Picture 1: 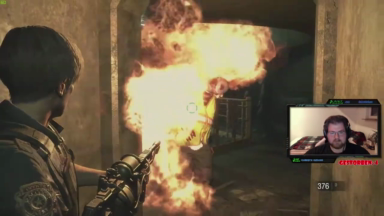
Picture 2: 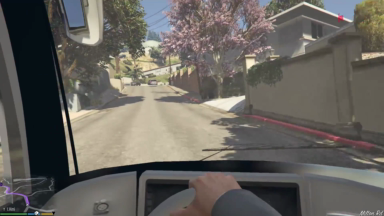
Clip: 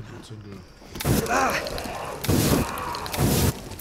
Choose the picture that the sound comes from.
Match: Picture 1